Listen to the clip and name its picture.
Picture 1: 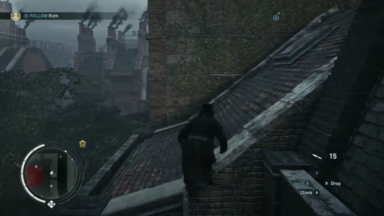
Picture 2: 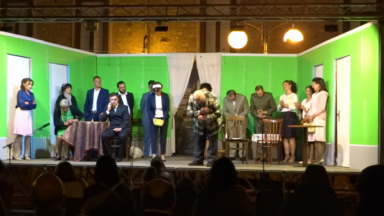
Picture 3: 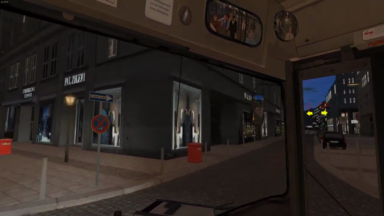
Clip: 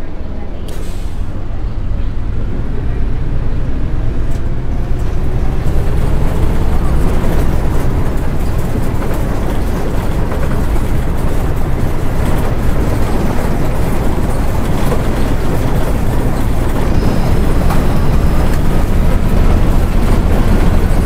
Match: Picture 3